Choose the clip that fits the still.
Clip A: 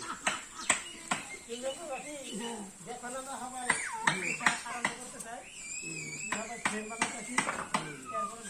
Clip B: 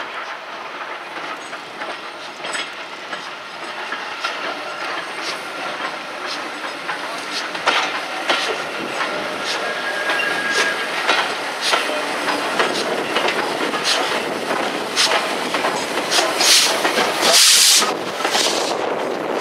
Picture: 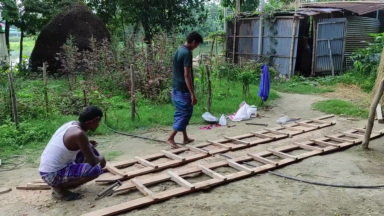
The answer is A